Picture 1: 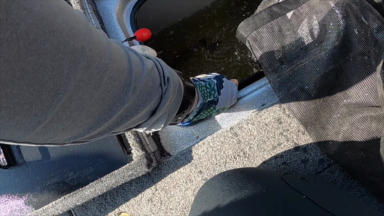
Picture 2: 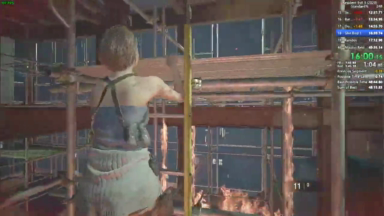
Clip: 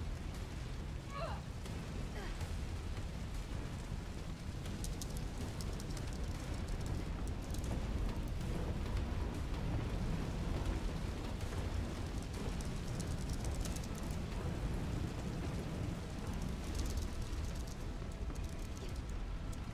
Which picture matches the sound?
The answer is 2